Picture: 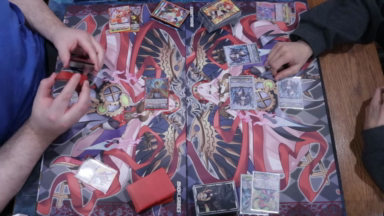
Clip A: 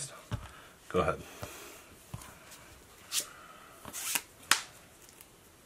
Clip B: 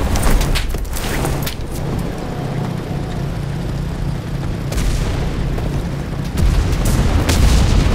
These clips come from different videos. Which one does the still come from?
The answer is A